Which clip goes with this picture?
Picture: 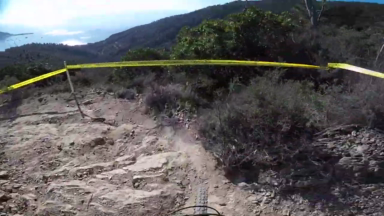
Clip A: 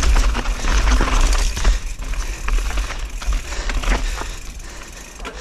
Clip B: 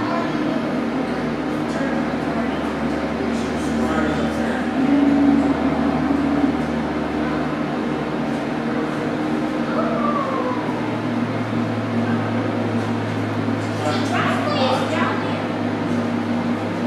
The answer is A